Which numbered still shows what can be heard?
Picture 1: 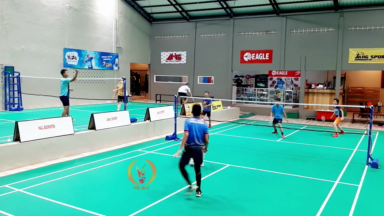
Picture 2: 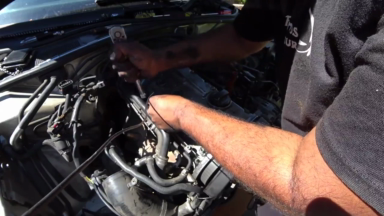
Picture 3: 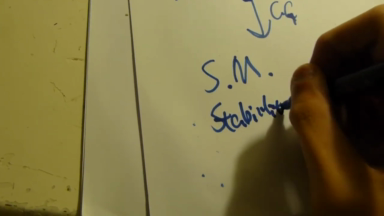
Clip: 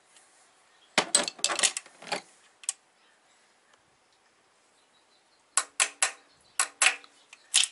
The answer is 2